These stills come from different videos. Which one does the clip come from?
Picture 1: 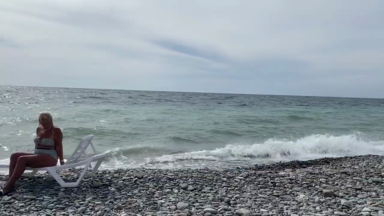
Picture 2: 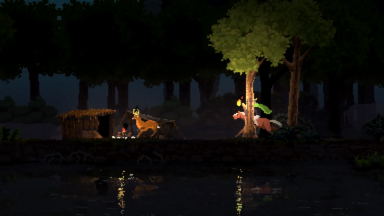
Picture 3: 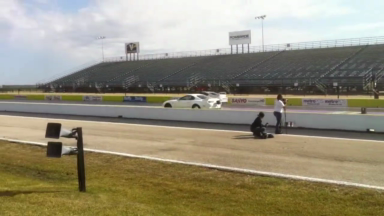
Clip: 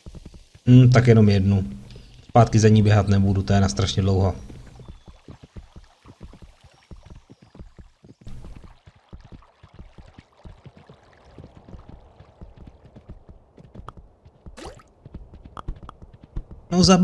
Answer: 2